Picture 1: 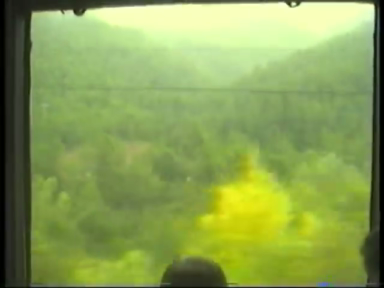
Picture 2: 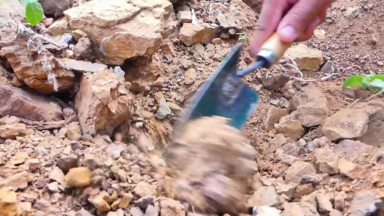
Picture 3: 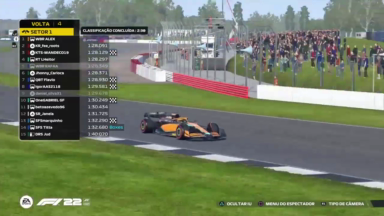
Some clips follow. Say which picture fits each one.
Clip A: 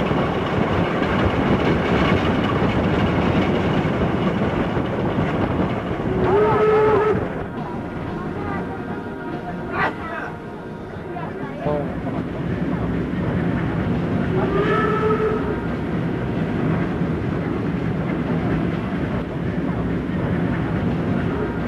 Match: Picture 1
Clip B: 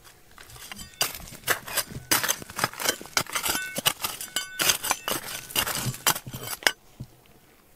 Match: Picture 2